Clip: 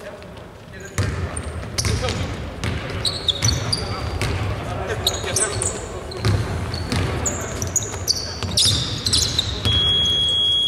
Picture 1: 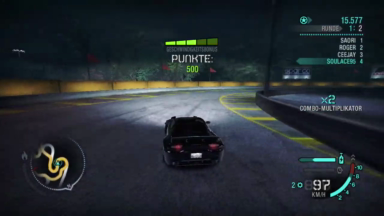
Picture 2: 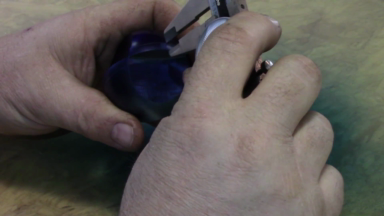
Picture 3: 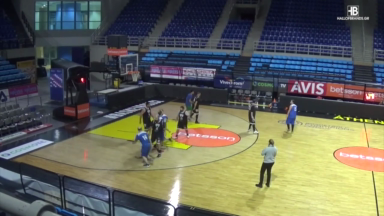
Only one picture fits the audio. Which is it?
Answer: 3